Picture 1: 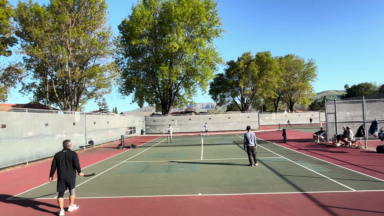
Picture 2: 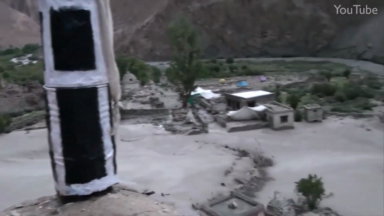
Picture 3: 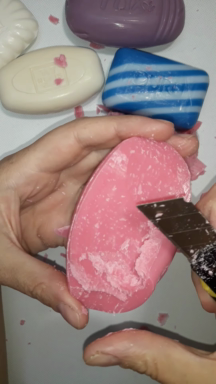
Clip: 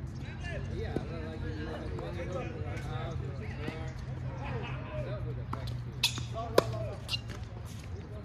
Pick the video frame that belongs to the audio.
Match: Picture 1